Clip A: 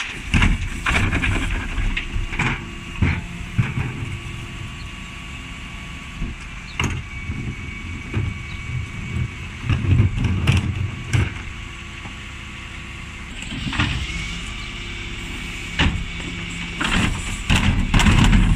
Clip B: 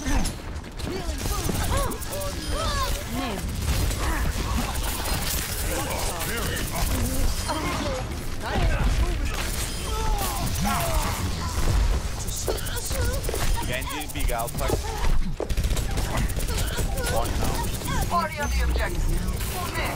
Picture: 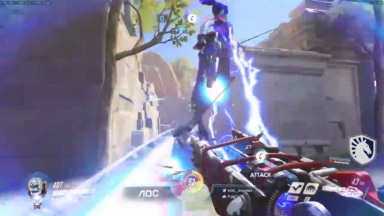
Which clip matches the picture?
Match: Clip B